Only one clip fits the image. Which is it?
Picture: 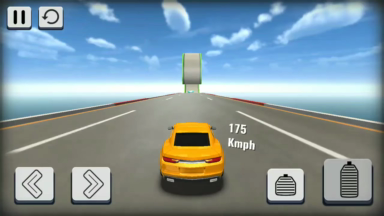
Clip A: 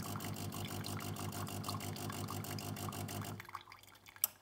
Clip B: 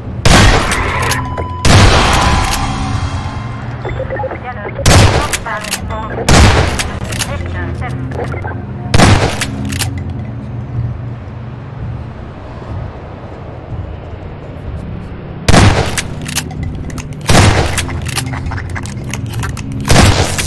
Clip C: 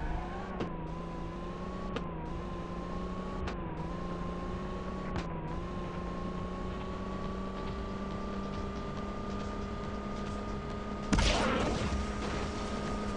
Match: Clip C